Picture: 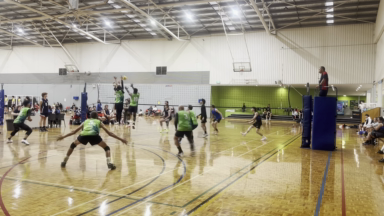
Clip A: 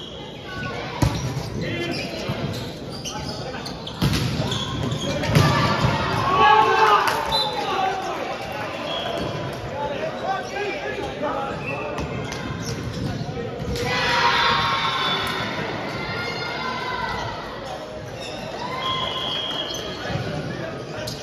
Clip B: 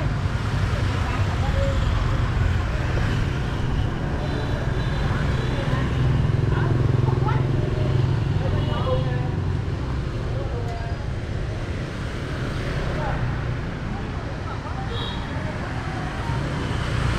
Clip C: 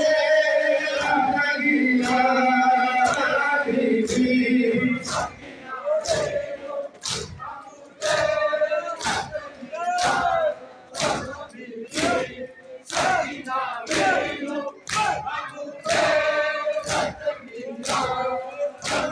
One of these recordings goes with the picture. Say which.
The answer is A